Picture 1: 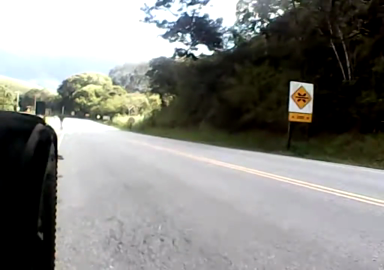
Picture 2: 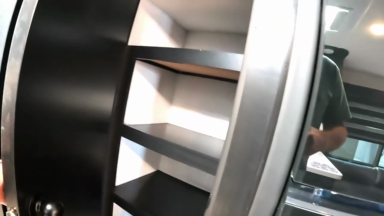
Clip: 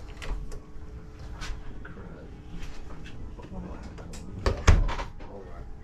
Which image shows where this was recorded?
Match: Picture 2